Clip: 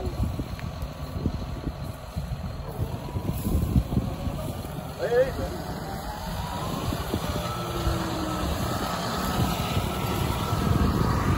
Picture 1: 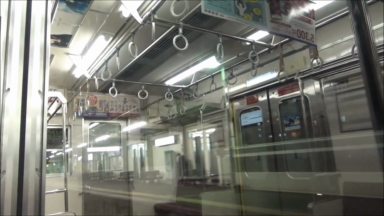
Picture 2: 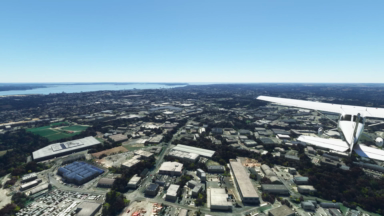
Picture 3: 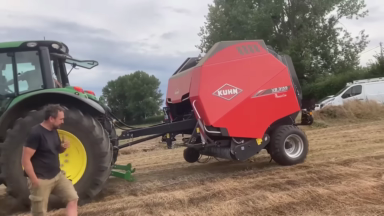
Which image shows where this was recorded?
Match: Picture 3